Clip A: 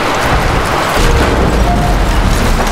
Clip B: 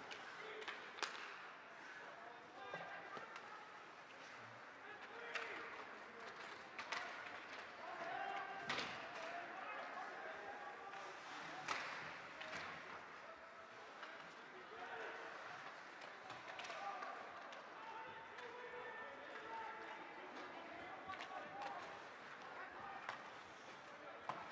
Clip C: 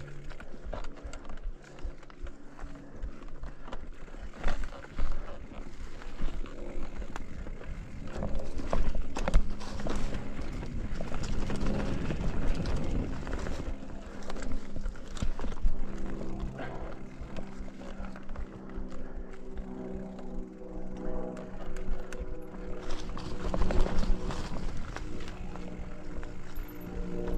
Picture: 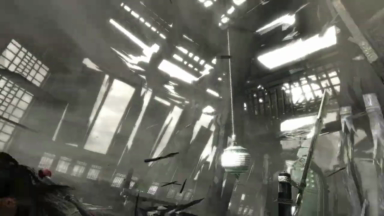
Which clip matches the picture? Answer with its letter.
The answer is A